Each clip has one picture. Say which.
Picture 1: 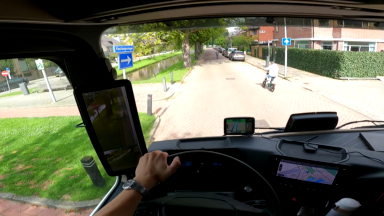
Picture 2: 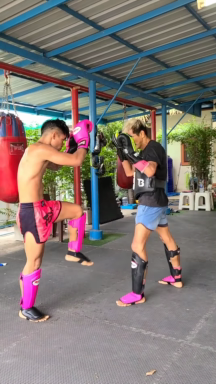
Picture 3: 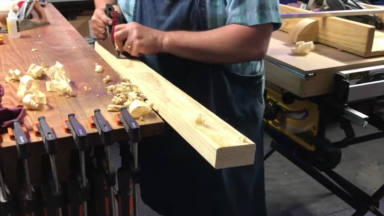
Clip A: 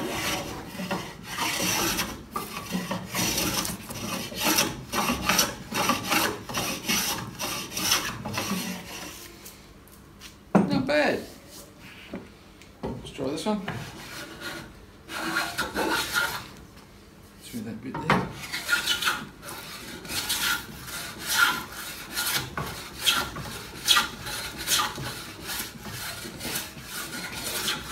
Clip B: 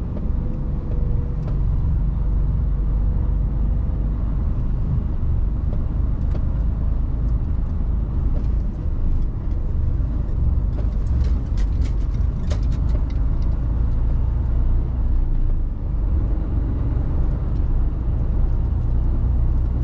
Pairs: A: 3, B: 1